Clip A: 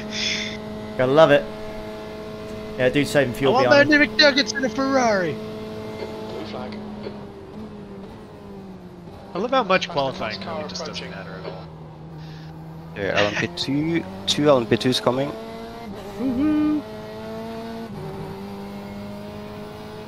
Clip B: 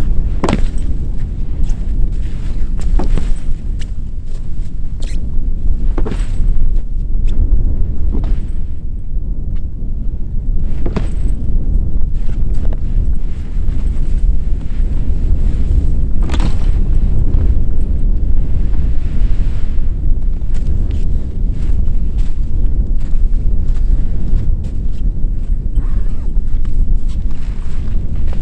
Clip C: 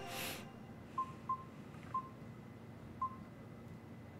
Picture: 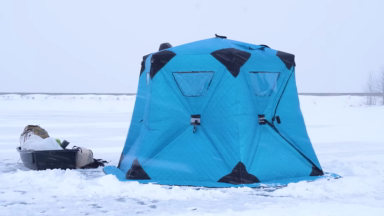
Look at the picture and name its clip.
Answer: B